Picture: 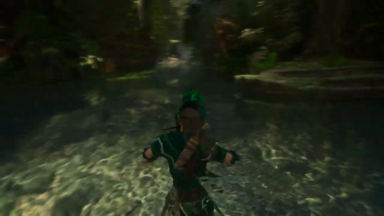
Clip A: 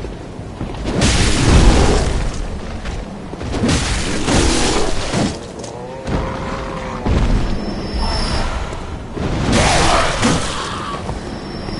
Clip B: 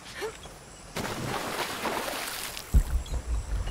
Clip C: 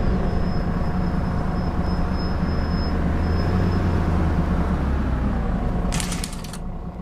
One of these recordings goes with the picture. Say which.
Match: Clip B